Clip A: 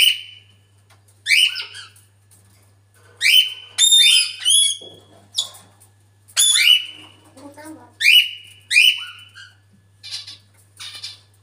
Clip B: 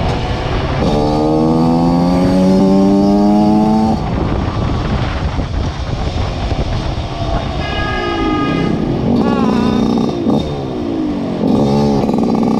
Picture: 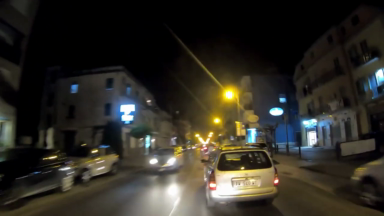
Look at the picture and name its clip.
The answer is B